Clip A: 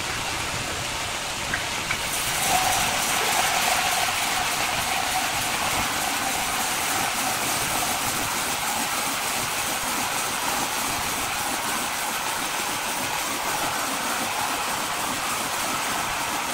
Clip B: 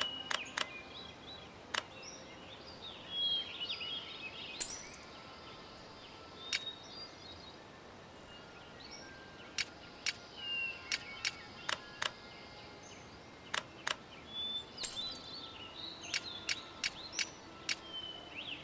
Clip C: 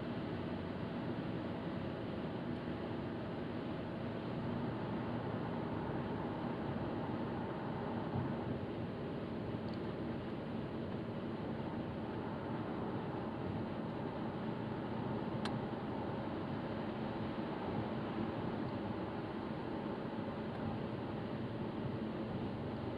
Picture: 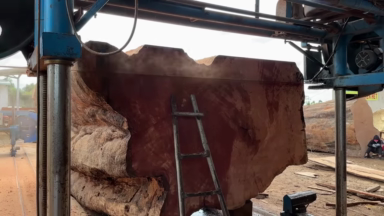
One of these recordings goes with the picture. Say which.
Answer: A